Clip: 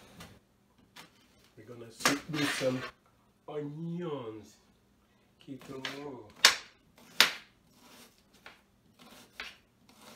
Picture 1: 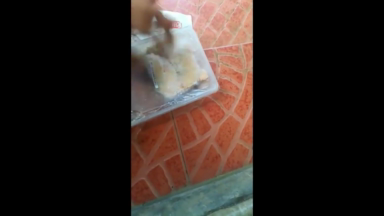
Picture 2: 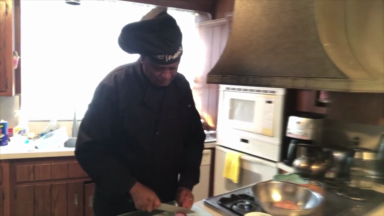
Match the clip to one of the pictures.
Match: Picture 2